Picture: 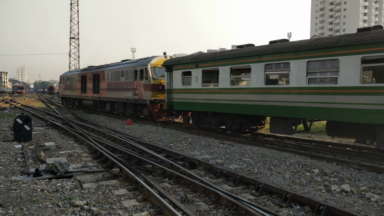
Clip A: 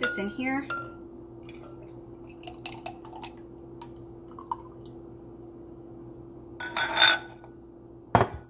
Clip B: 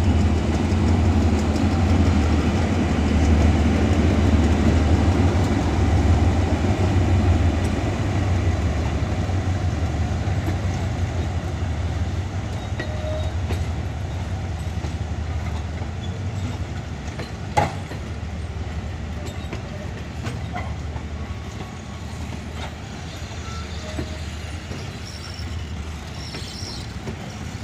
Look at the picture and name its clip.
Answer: B